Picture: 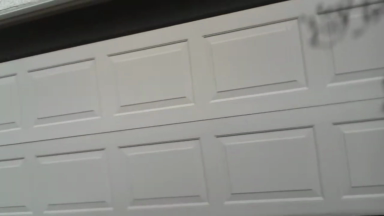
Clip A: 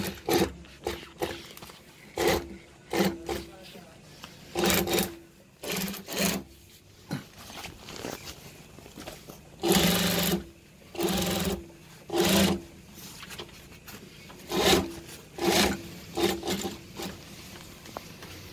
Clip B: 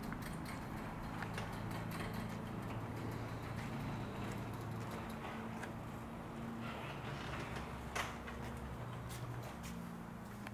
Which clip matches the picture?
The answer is B